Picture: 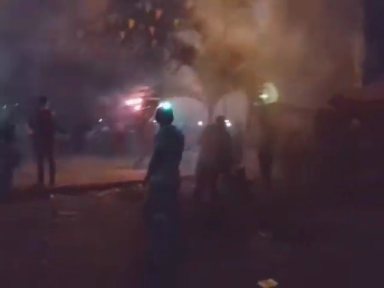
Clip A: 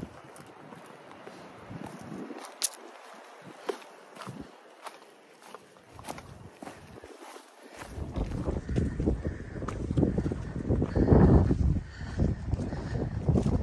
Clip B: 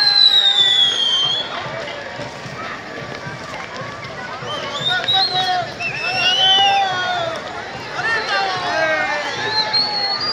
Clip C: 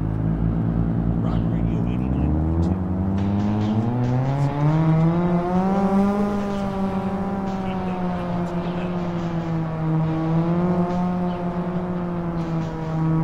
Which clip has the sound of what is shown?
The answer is B